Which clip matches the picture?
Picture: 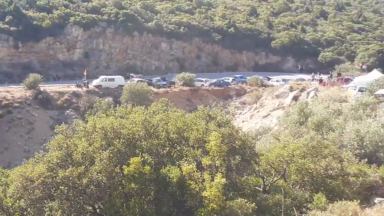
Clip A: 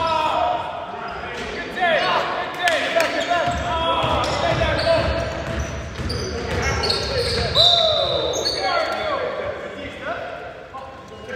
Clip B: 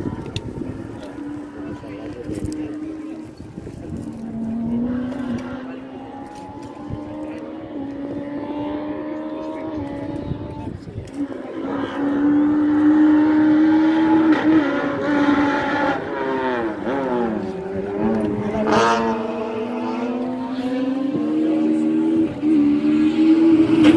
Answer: B